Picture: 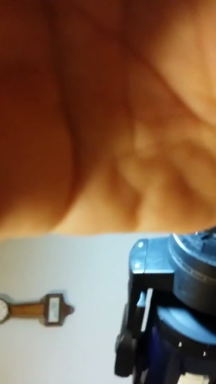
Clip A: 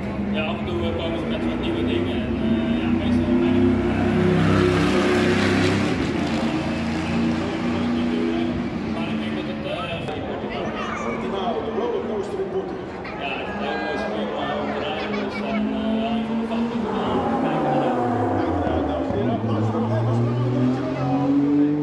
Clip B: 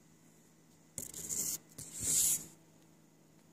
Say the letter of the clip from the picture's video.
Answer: B